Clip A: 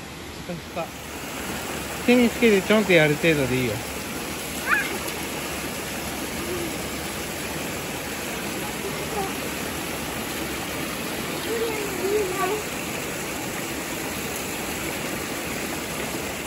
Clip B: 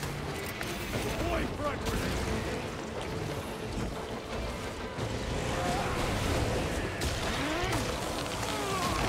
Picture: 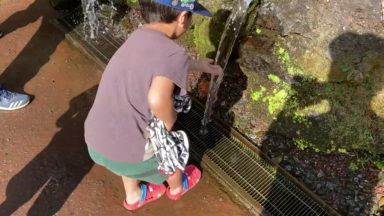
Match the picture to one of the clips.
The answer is A